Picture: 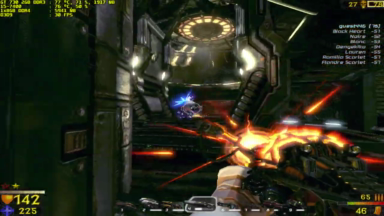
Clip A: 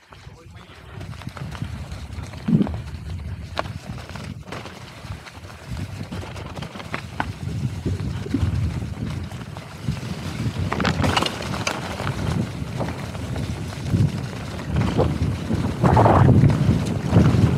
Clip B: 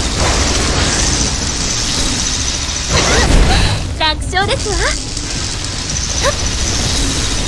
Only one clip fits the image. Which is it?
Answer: B